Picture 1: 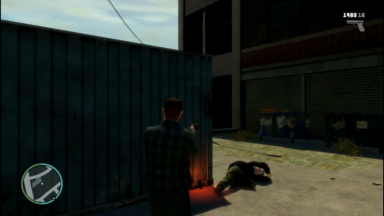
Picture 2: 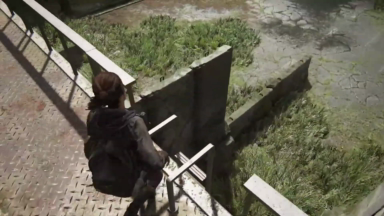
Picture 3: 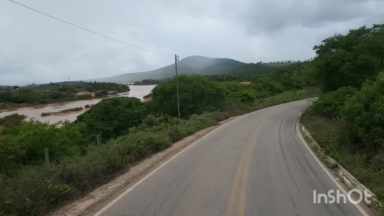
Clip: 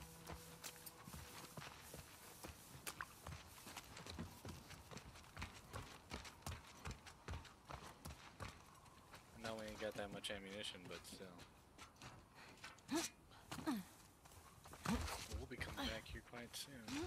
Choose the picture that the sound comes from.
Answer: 2